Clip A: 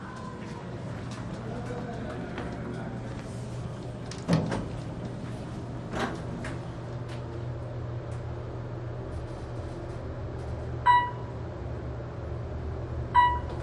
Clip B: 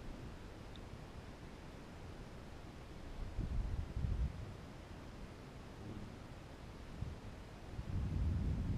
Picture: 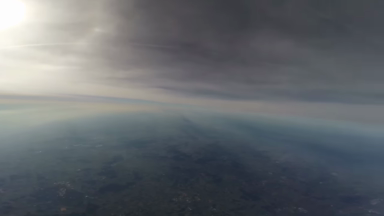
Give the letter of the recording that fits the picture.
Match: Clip B